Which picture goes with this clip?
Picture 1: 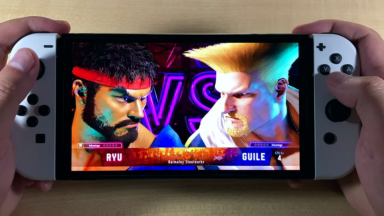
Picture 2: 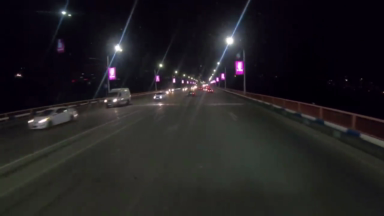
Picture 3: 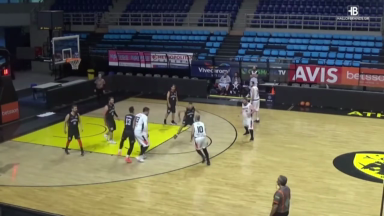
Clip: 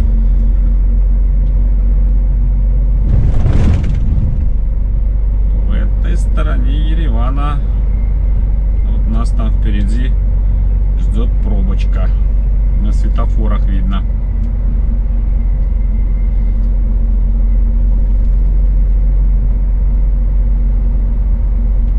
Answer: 2